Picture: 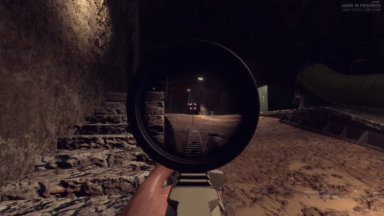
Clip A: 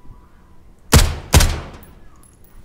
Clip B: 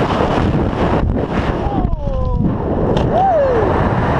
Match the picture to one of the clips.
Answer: A